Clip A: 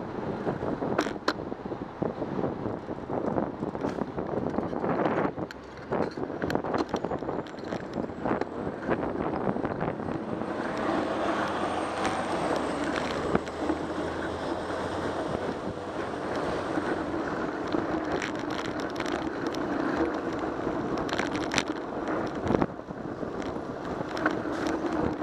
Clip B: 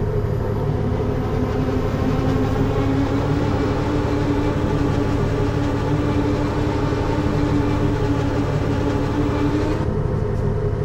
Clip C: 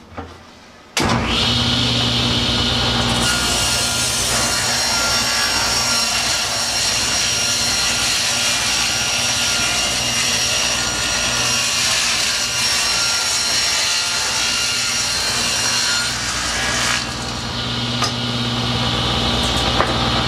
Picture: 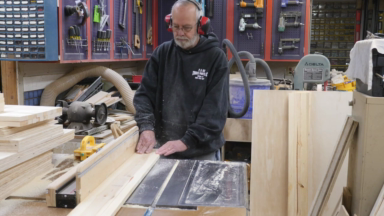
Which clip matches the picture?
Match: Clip C